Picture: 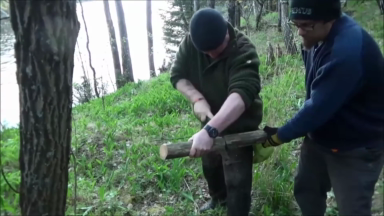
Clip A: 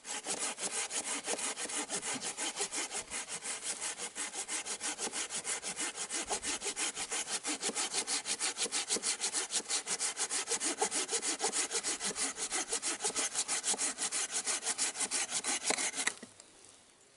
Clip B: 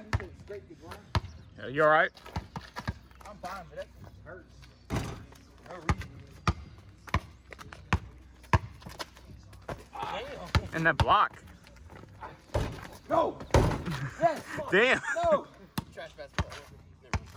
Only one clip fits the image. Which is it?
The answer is A